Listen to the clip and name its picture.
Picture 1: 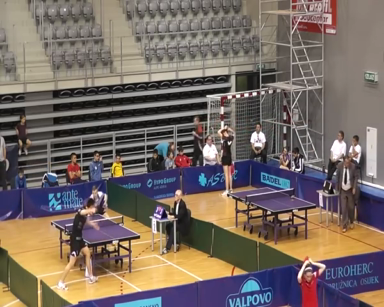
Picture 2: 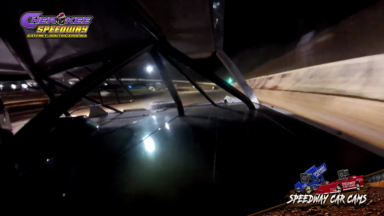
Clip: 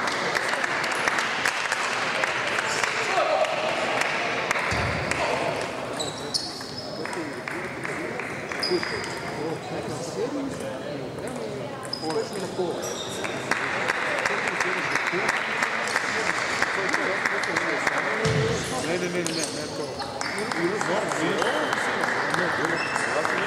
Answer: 1